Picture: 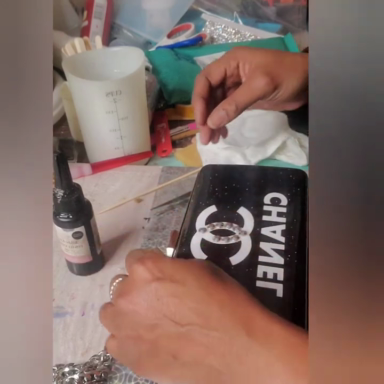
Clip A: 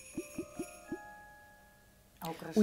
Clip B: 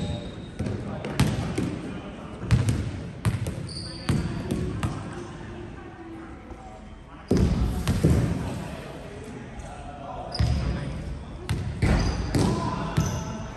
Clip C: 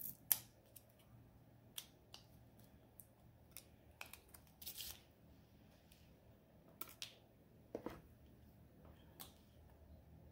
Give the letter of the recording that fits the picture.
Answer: C